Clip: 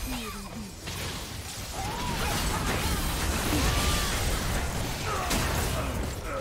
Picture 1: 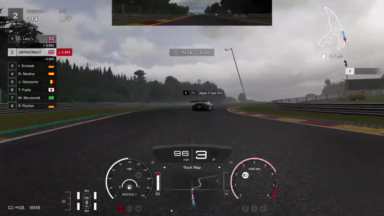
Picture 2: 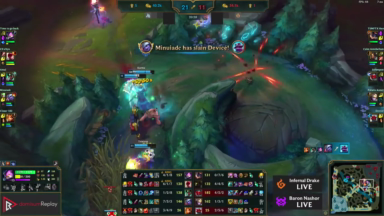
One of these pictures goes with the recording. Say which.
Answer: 2